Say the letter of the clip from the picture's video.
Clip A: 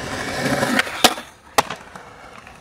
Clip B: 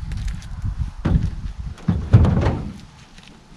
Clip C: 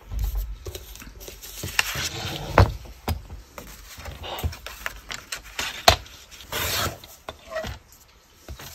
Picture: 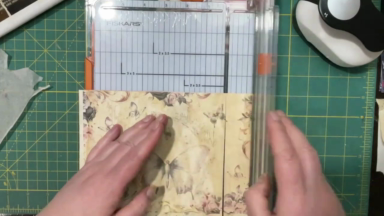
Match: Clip C